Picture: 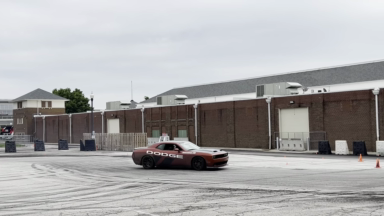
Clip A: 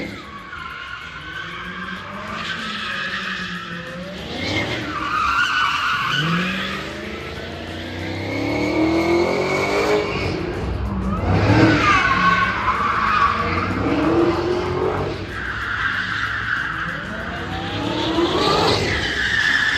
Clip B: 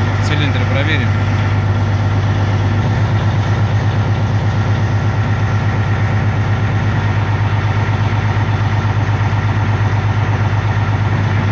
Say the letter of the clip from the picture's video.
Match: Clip A